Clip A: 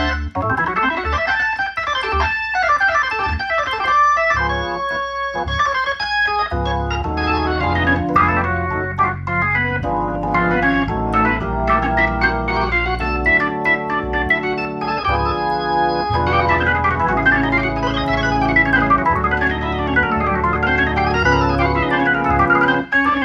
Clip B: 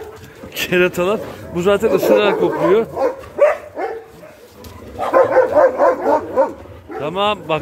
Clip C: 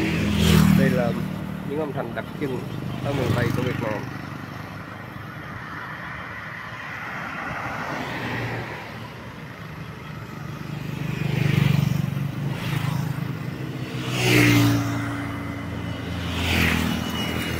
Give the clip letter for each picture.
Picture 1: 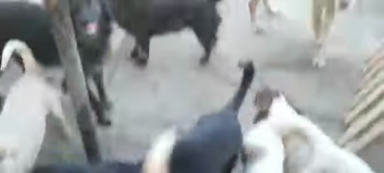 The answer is B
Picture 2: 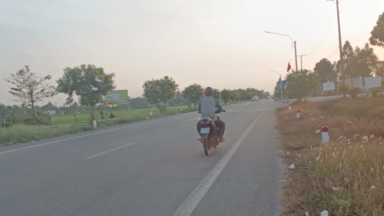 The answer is C